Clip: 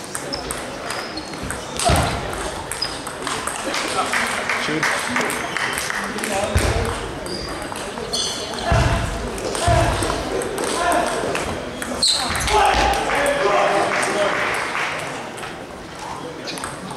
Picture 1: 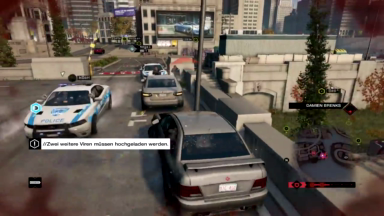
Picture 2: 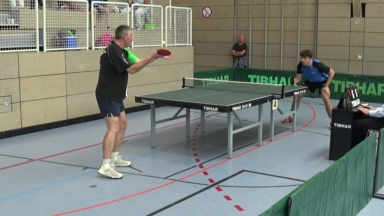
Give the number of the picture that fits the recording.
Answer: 2